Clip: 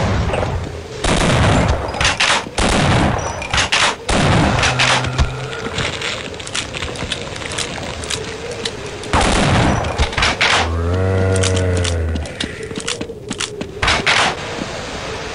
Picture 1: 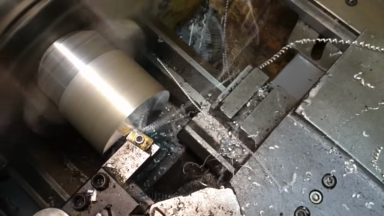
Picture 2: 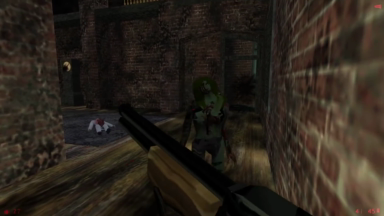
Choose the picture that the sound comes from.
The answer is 2